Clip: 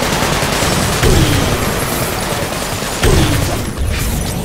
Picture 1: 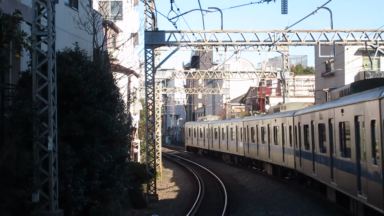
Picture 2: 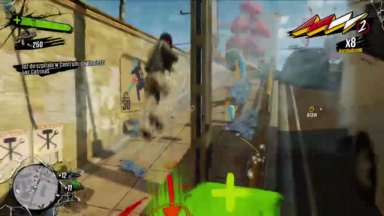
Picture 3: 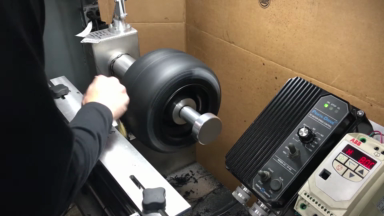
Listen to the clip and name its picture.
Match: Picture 2